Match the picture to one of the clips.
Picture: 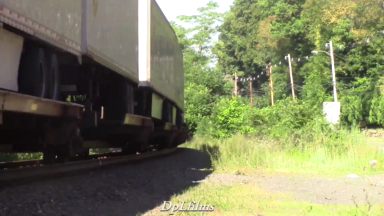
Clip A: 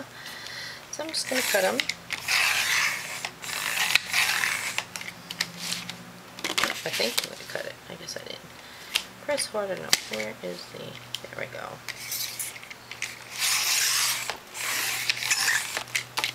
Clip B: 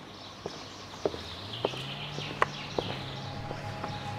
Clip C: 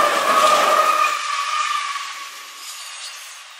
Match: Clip C